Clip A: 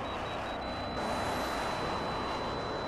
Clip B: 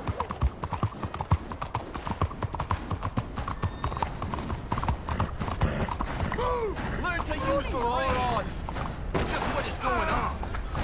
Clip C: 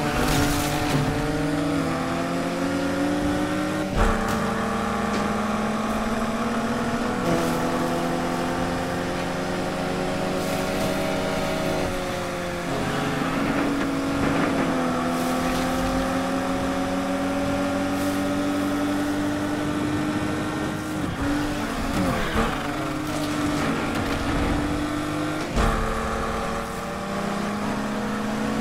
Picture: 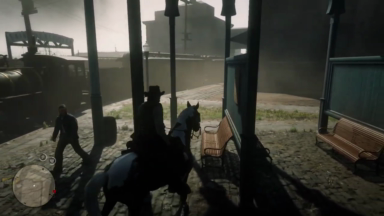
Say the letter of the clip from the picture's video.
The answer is B